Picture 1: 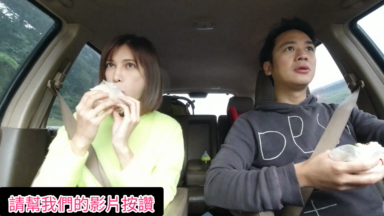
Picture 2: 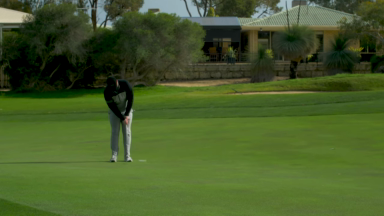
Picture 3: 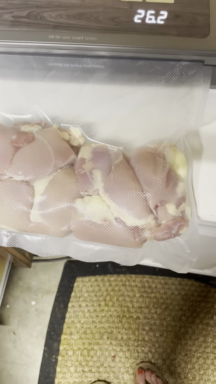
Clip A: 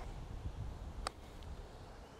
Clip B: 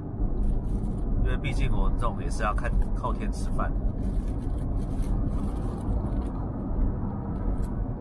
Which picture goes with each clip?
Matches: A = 2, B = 1